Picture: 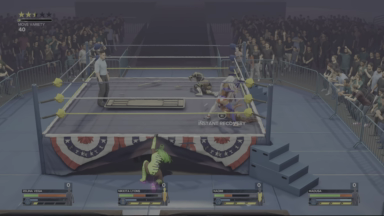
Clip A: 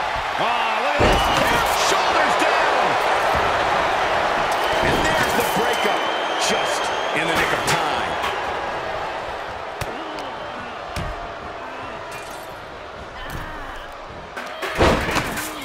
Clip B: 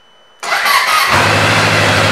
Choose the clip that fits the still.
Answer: A